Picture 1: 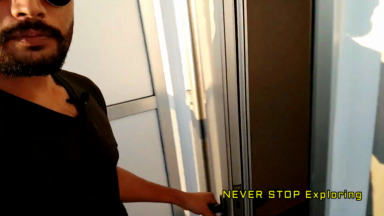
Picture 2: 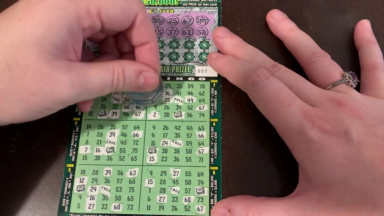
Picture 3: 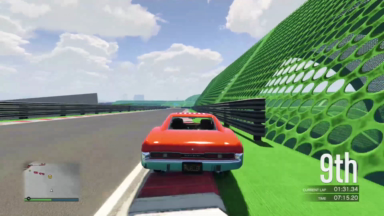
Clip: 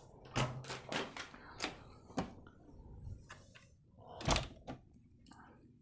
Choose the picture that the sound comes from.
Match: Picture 1